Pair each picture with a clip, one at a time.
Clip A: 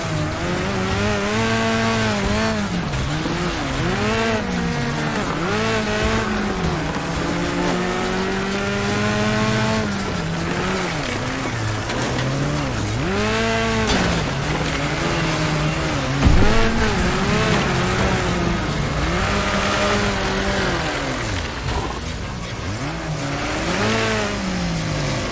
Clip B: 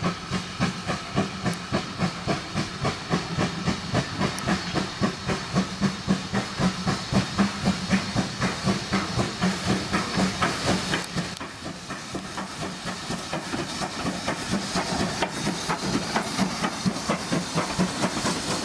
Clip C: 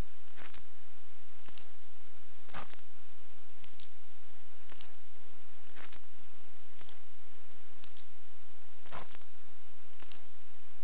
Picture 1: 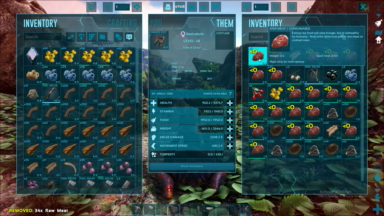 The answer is C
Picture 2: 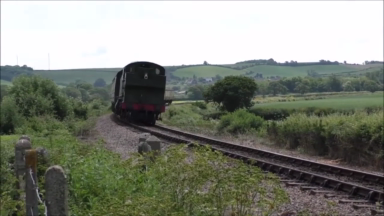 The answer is B